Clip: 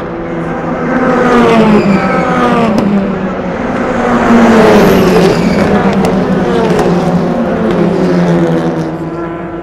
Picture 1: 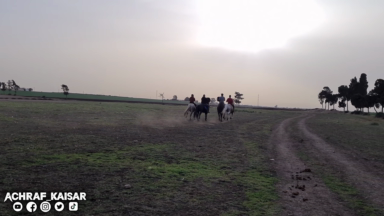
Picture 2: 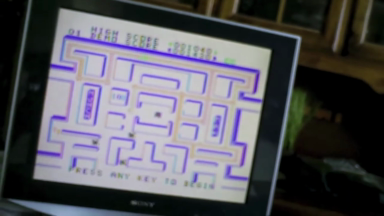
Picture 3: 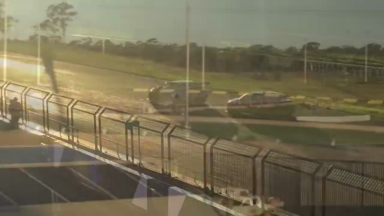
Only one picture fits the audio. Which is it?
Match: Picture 3